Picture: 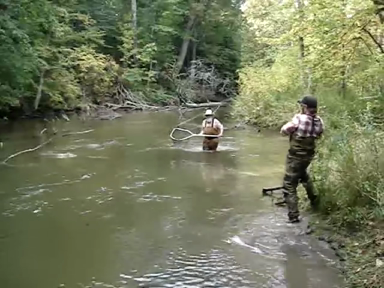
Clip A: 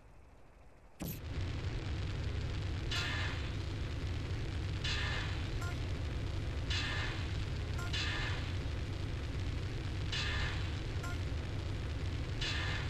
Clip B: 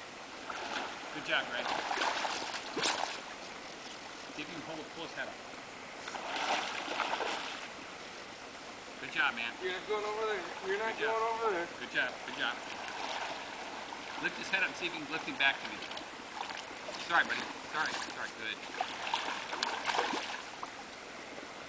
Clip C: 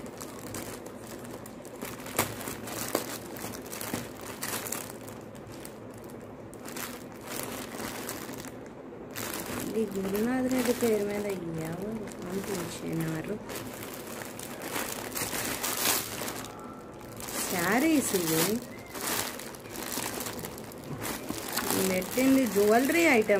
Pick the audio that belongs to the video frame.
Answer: B